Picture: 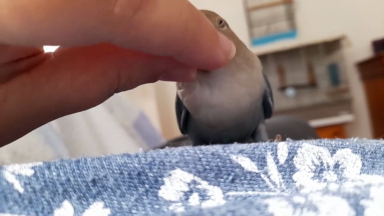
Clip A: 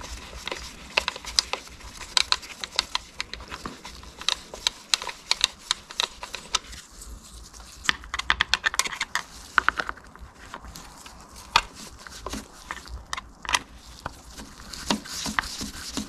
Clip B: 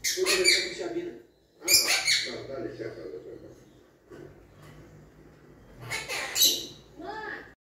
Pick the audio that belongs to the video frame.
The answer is B